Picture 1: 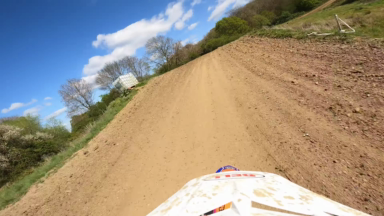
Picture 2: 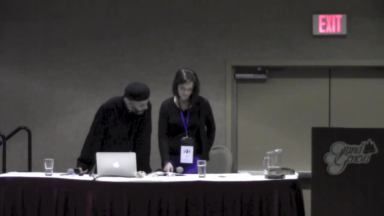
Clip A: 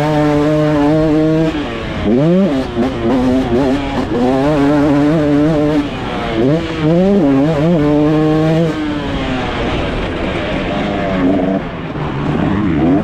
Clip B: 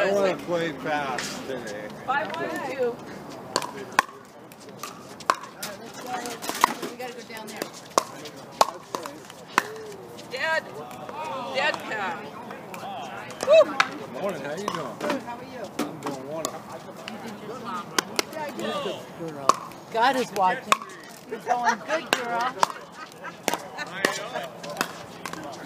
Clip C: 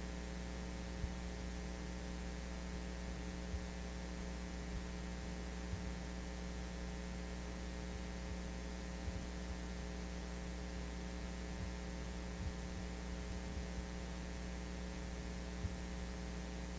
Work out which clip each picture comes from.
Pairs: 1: A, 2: C